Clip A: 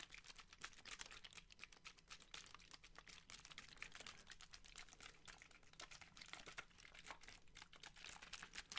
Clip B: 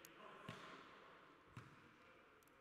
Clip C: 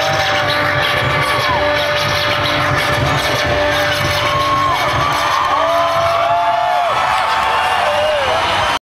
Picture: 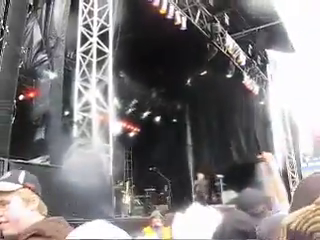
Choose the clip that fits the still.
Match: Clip C